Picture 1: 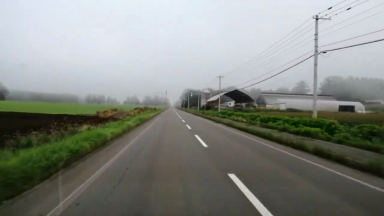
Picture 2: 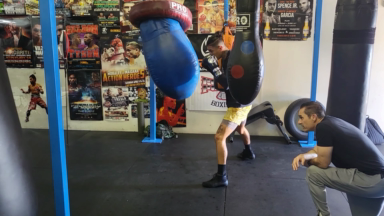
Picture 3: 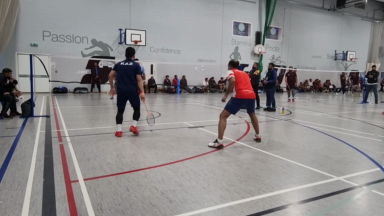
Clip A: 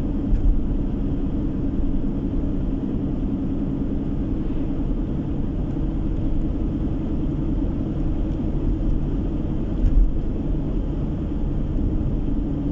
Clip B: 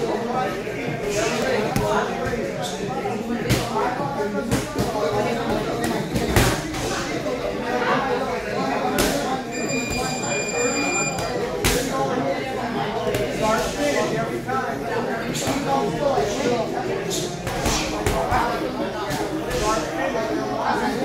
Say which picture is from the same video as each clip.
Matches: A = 1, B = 2